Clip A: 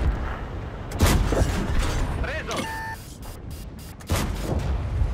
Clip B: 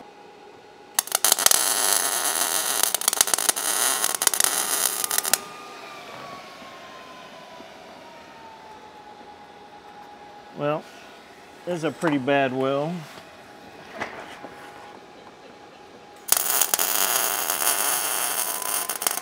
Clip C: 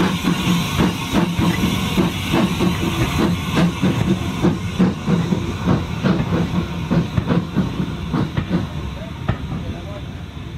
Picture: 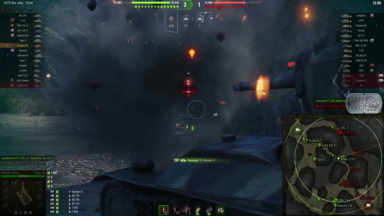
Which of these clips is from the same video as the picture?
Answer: A